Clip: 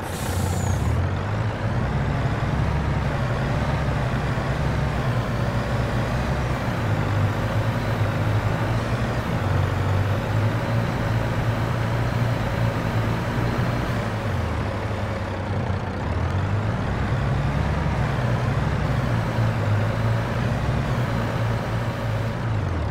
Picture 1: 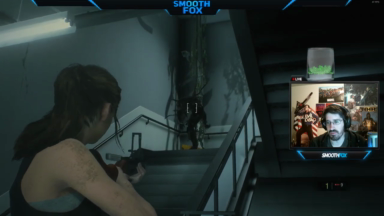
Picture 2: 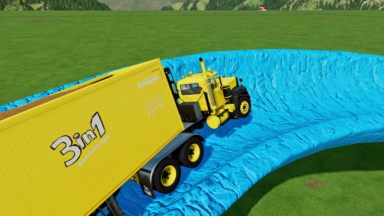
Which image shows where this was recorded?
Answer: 2